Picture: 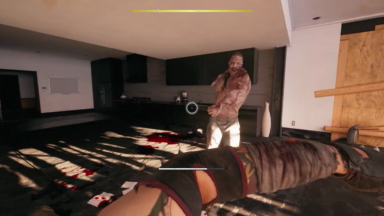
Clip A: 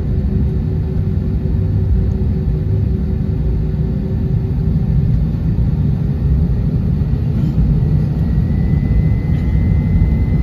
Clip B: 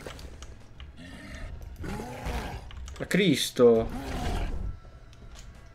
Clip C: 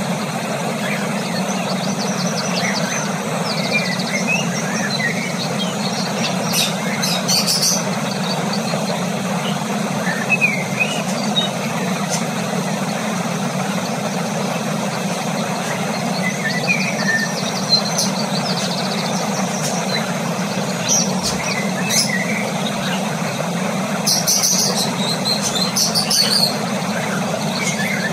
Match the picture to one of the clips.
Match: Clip B